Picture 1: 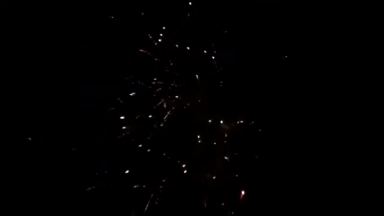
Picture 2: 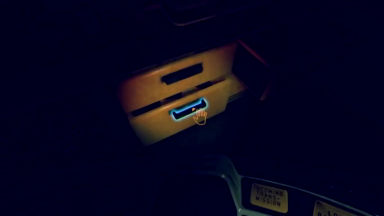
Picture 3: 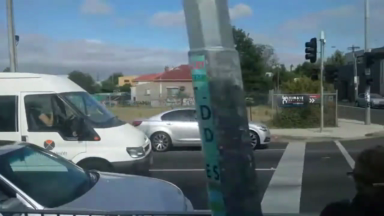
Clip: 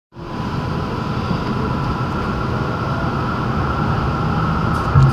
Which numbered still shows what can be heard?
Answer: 3